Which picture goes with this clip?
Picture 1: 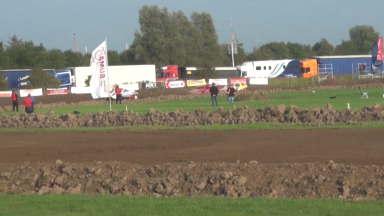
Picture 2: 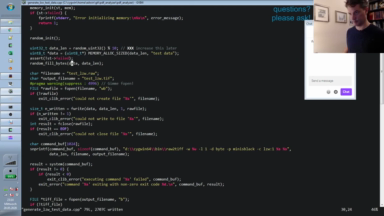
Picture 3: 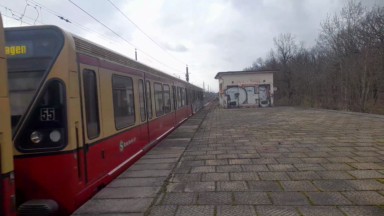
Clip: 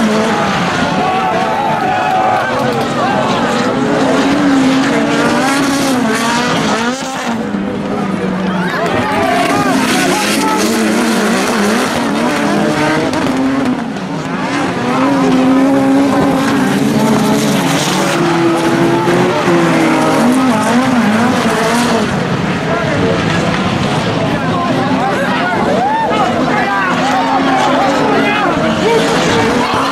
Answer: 1